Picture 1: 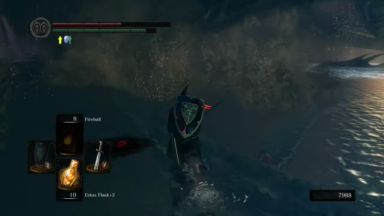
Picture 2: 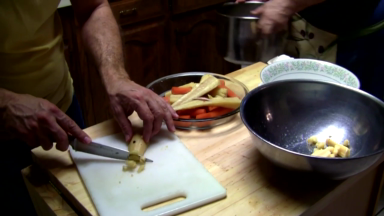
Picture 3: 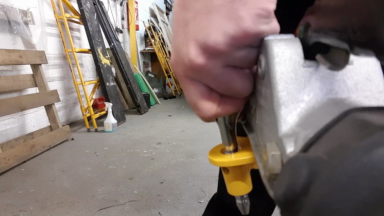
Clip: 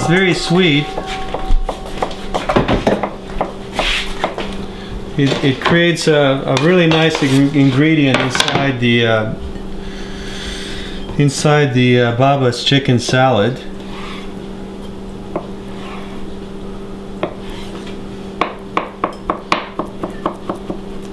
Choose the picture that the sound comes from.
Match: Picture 2